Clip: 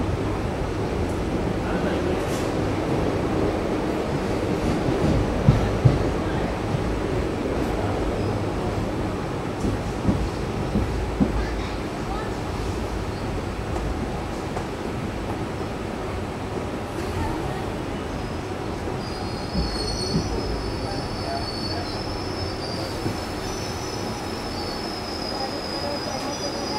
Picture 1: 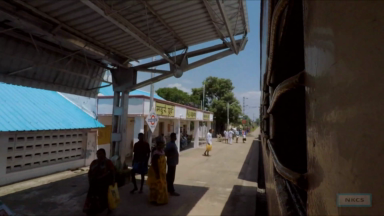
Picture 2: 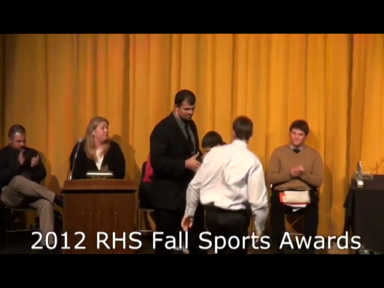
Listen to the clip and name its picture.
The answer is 1